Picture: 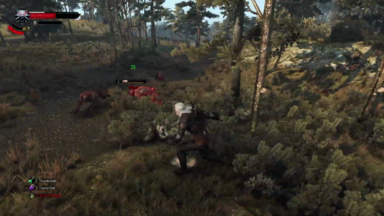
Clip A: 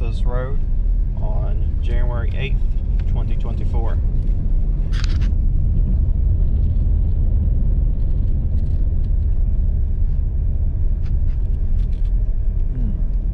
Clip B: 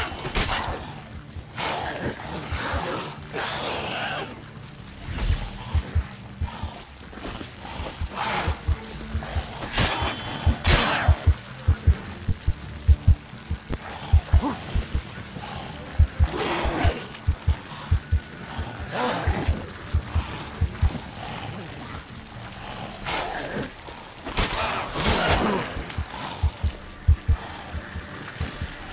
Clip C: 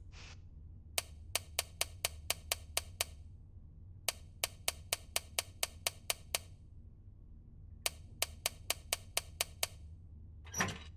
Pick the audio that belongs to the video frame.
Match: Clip B